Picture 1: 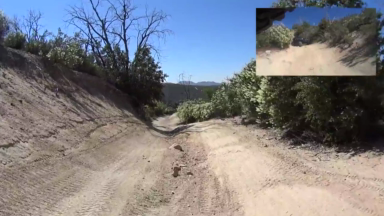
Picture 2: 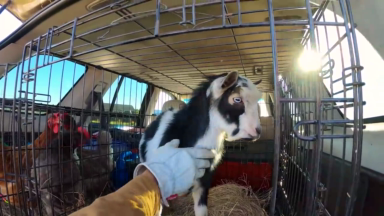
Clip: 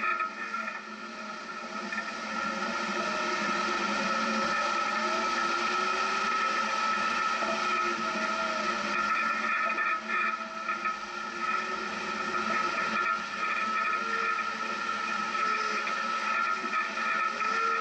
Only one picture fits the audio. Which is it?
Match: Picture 1